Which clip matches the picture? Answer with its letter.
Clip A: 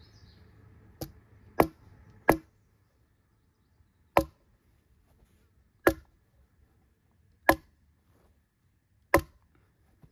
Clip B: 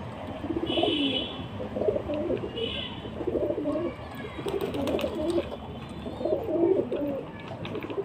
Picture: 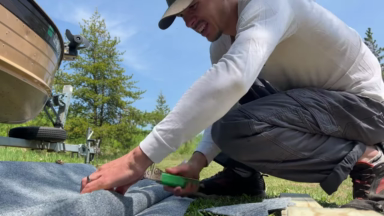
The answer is A